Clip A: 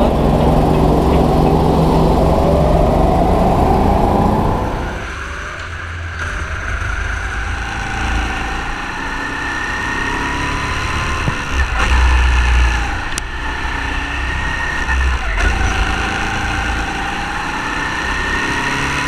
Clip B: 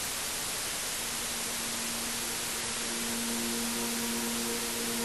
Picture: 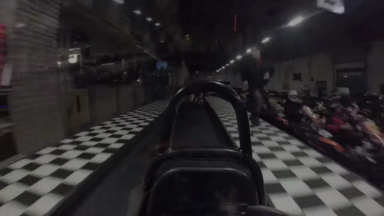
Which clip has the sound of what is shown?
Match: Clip A